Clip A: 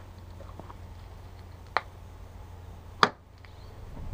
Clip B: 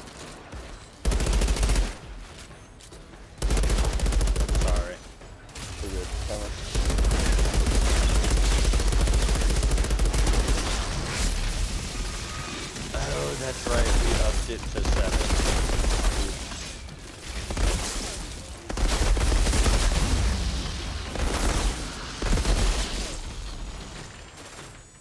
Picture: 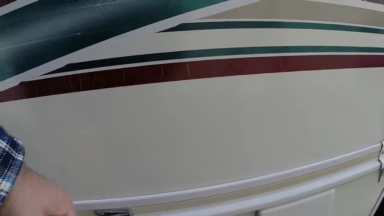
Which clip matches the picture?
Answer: A